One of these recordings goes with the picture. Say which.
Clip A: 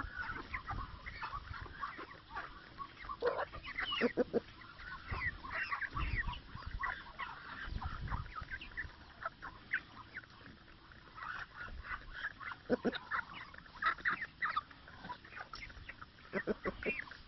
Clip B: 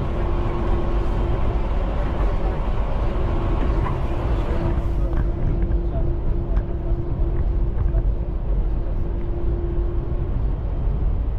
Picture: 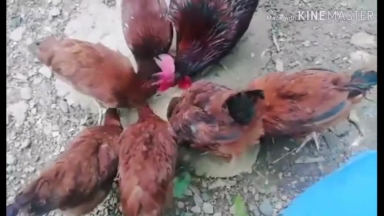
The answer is A